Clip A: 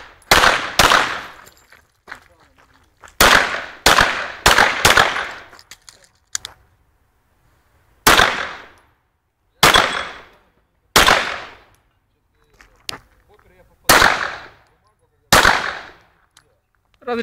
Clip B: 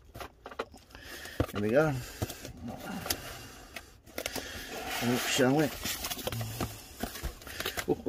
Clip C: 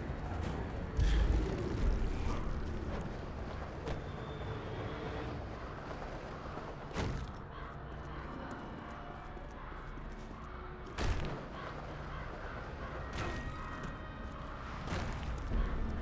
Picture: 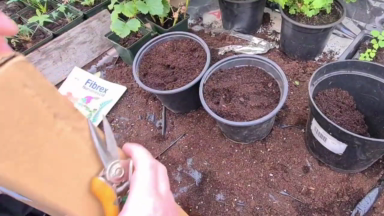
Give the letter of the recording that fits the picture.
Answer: B